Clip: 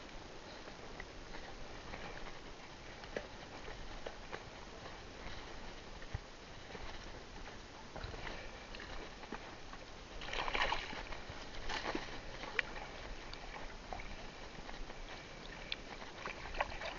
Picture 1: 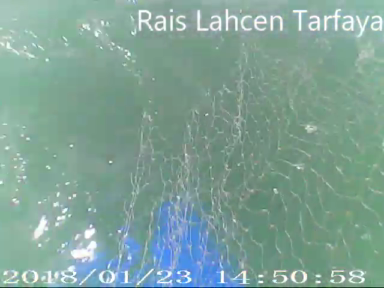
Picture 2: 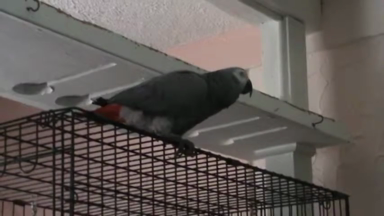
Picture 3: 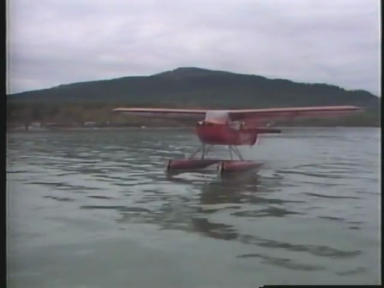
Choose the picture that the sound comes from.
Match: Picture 1